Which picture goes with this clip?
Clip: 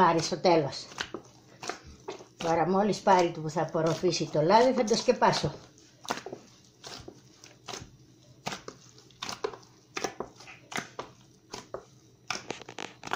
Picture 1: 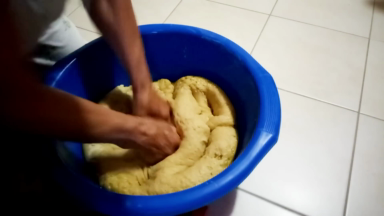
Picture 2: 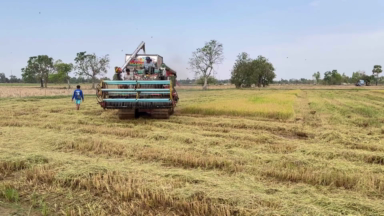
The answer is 1